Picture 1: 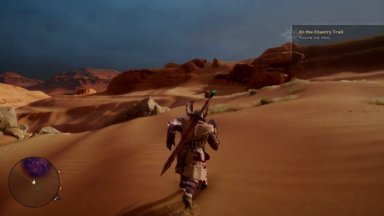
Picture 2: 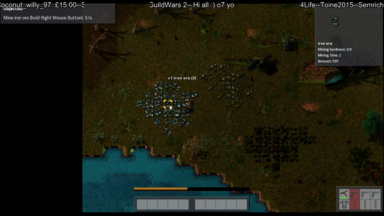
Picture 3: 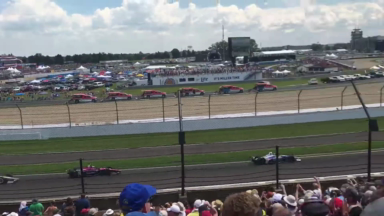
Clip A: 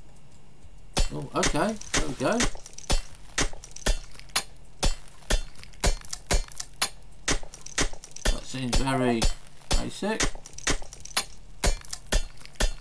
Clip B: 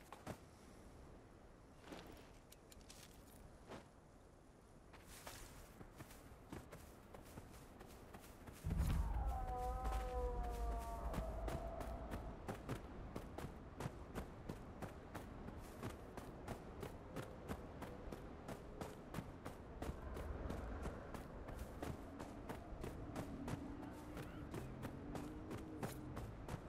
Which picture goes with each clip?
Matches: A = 2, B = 1